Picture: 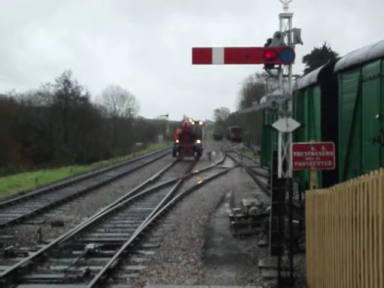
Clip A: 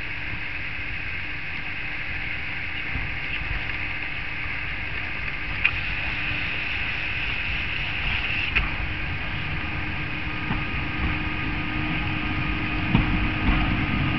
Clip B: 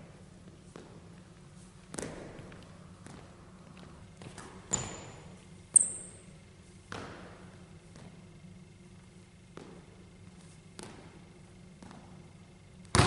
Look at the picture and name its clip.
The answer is A